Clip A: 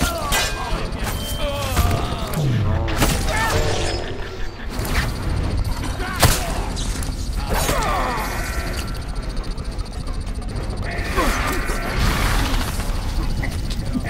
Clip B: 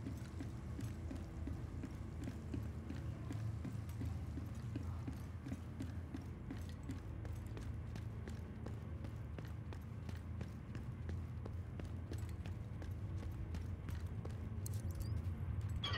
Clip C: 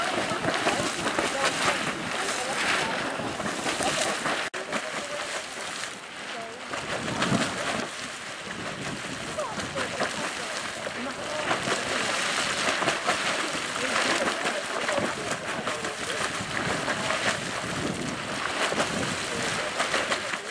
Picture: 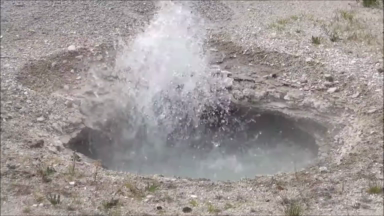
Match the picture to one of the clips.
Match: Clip C